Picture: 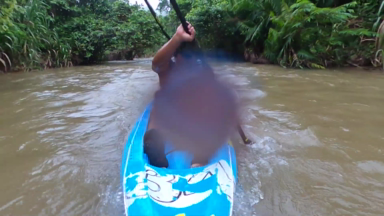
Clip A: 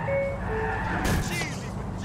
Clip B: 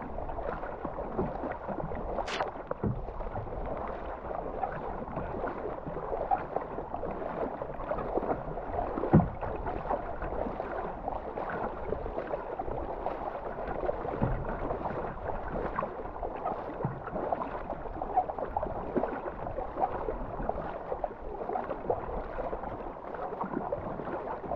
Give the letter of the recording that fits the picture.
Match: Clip B